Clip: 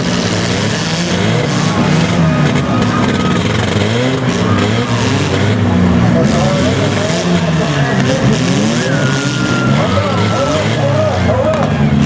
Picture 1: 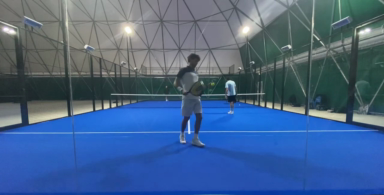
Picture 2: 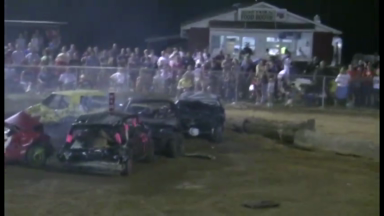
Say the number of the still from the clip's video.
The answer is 2